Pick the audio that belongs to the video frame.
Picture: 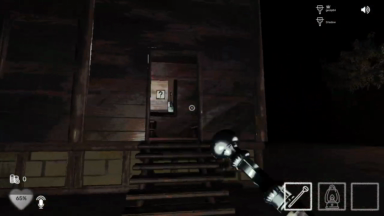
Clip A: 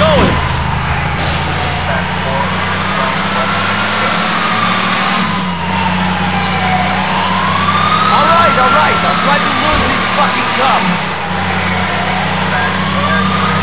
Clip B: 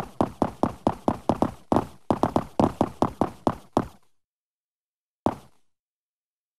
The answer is B